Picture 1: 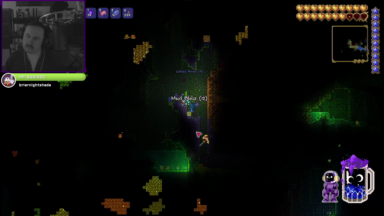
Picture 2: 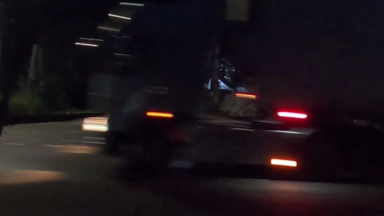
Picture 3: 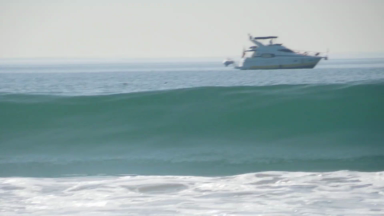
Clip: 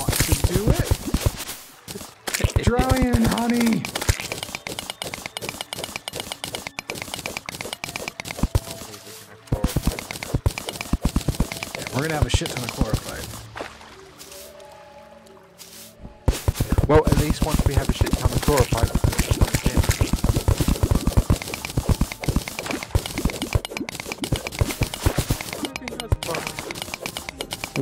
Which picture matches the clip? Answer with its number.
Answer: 1